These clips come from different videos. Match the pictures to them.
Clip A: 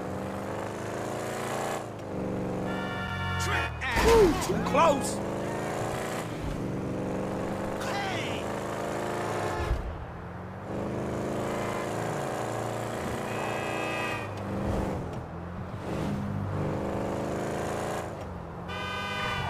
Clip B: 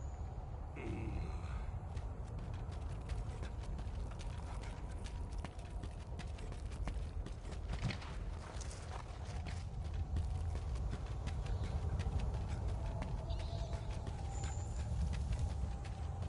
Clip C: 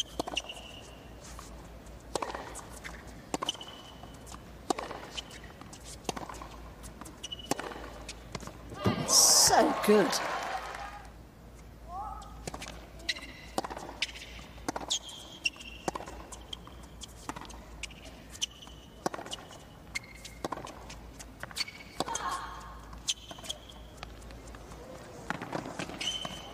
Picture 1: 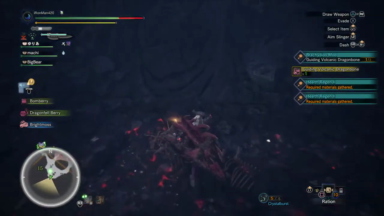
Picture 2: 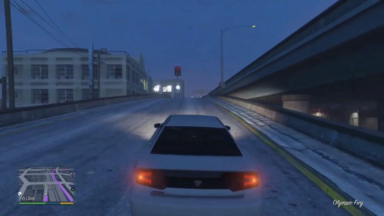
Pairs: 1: B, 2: A